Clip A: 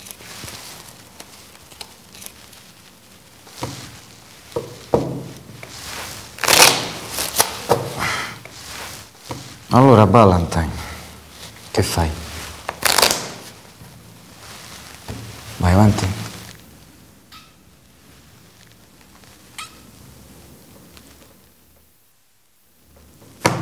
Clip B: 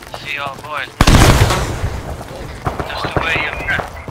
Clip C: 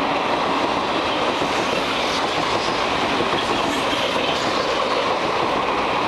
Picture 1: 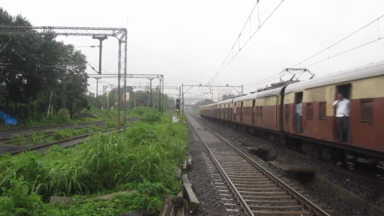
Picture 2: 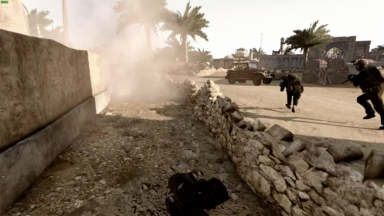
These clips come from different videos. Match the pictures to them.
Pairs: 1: C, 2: B